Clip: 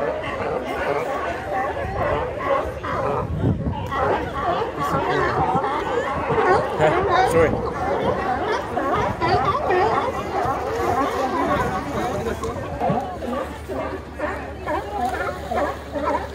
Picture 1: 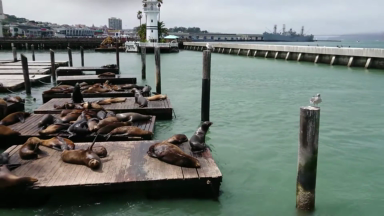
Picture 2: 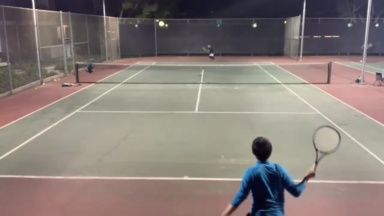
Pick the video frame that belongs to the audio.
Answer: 1